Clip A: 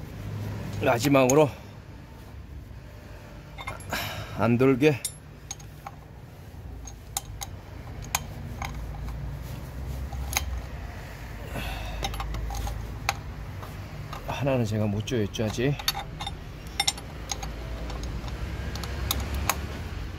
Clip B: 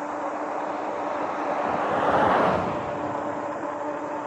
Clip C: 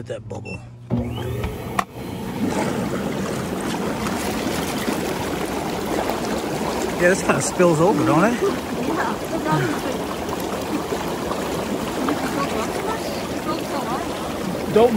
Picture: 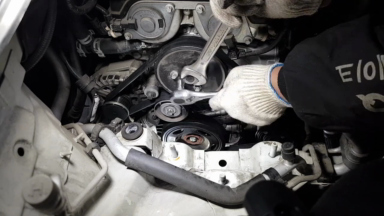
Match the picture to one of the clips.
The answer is A